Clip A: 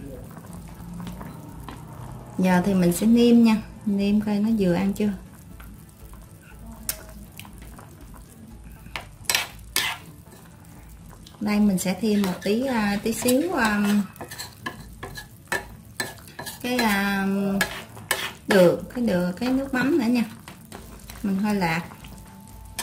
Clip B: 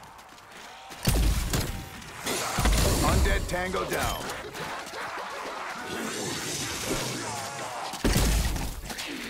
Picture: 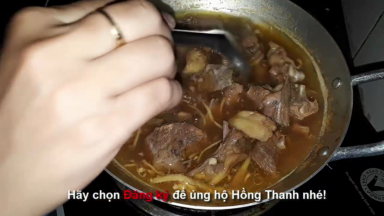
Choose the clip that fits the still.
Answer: A